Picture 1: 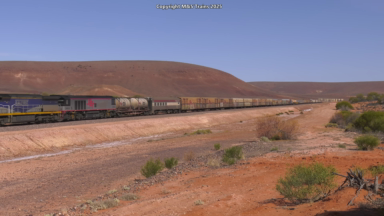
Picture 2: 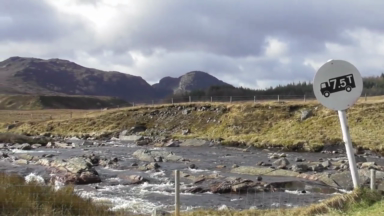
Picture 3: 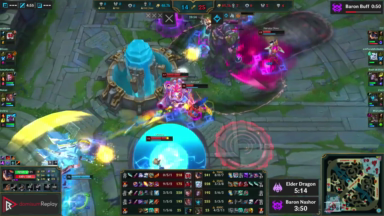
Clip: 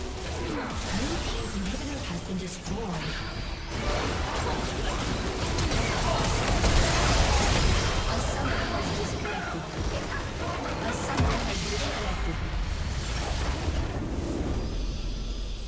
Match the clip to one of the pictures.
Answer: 3